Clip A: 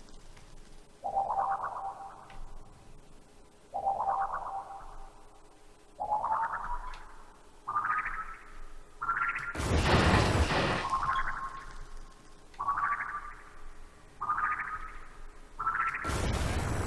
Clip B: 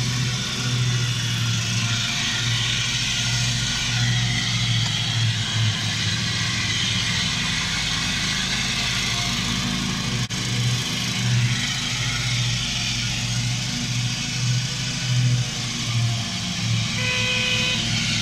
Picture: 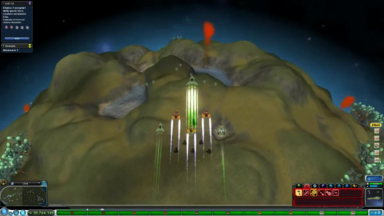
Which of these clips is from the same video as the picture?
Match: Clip A